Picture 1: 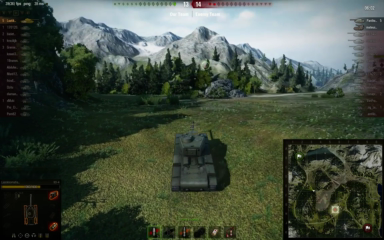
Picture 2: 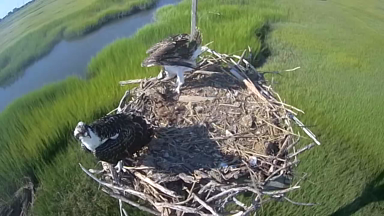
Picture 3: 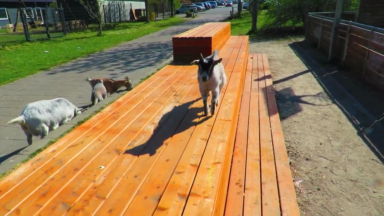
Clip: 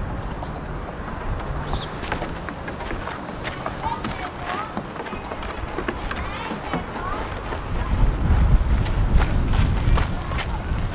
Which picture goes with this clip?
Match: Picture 3